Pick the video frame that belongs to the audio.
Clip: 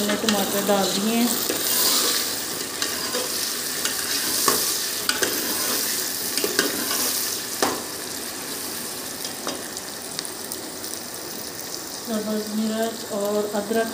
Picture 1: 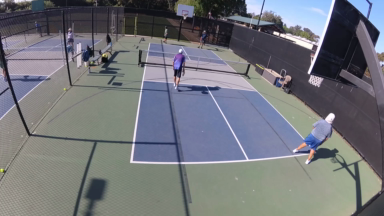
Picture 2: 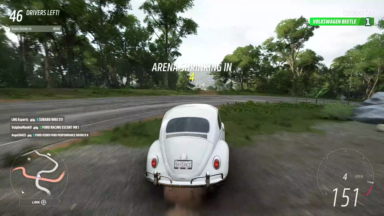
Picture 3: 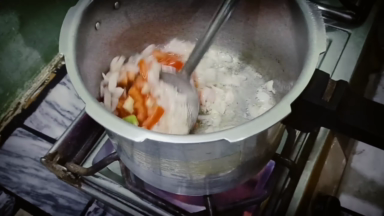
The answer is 3